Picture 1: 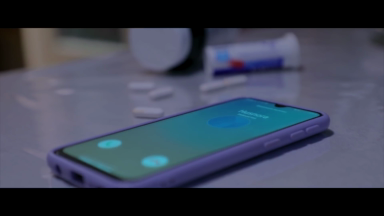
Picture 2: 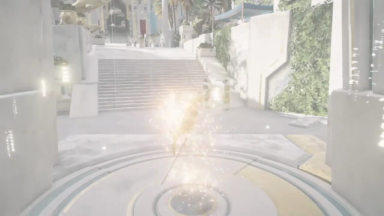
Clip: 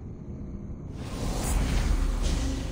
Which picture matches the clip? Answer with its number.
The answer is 2